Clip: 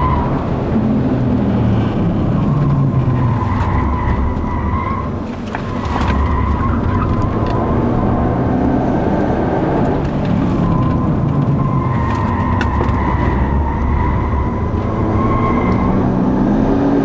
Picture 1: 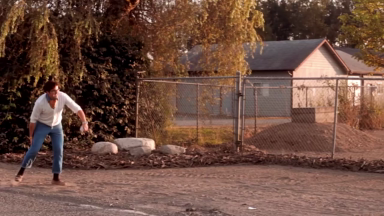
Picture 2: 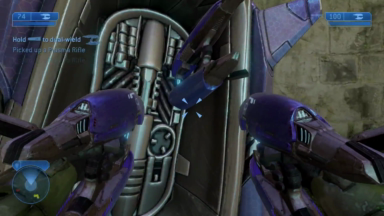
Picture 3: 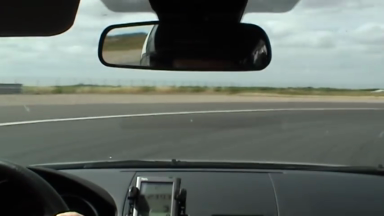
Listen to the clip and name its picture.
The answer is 3